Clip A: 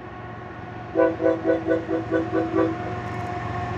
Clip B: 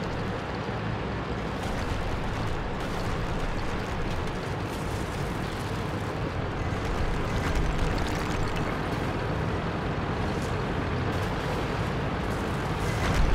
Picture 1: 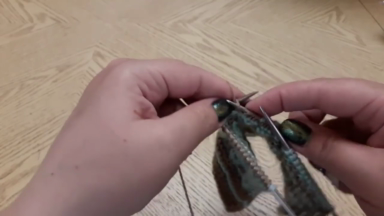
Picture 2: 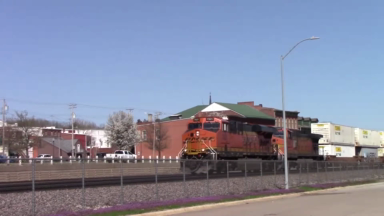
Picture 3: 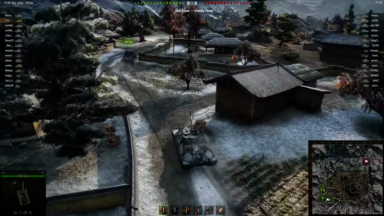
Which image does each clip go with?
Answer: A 2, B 3